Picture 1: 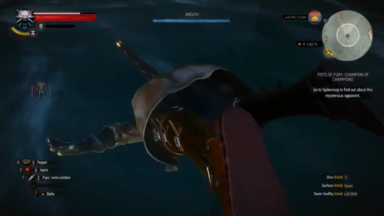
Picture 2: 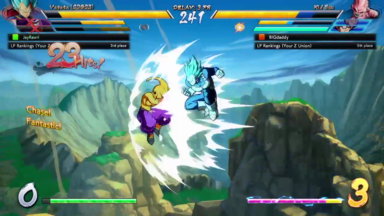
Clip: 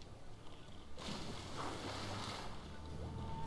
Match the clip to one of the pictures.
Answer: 1